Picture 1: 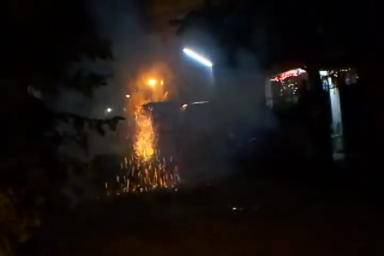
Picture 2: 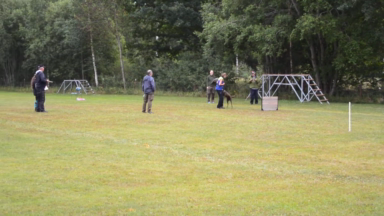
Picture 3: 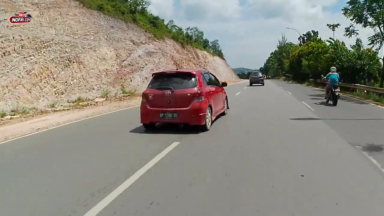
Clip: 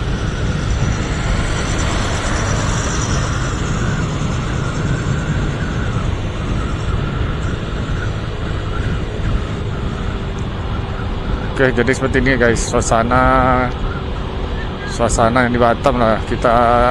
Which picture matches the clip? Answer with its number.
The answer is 3